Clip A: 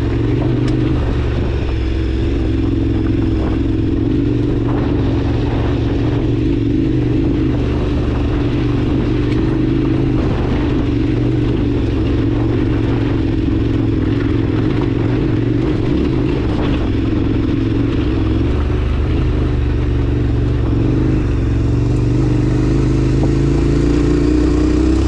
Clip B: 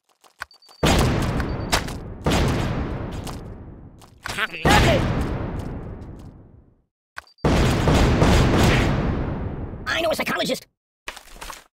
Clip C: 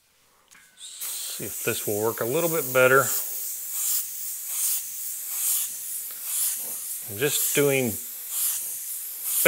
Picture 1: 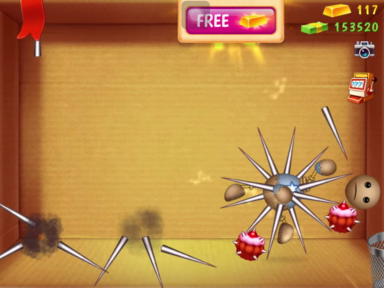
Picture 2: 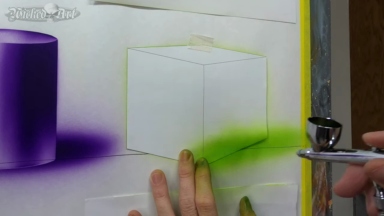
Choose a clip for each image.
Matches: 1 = B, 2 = C